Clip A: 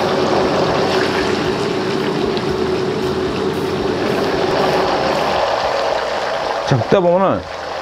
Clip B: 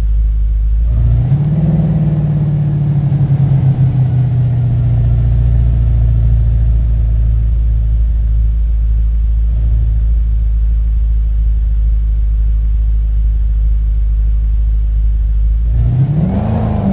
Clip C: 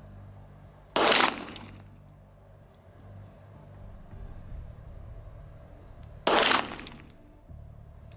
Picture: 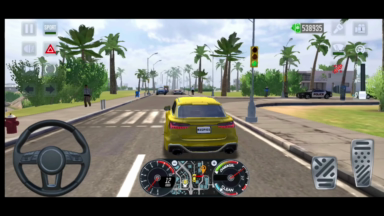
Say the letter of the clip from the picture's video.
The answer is B